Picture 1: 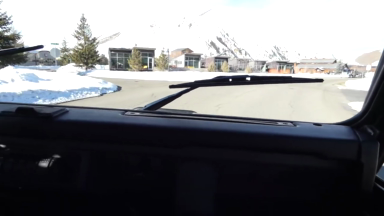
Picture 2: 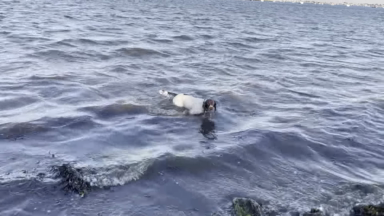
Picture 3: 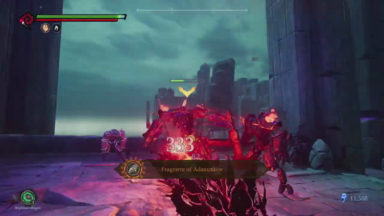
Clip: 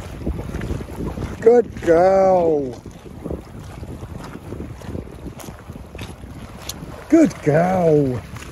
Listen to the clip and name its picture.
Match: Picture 2